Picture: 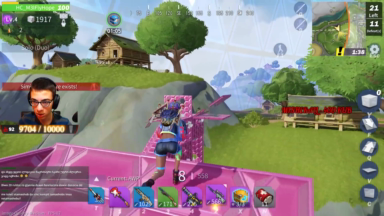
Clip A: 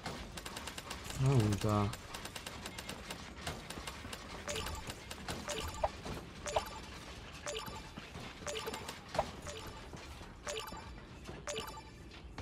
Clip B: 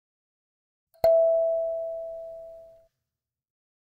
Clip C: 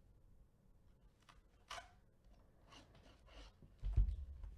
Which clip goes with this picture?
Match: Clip A